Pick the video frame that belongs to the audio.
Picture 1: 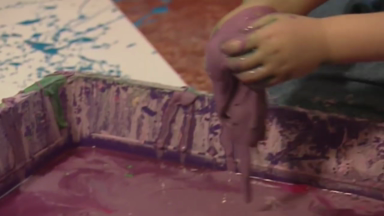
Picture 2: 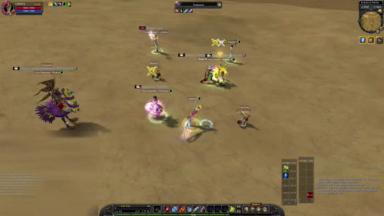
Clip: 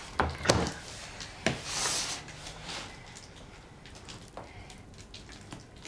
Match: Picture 1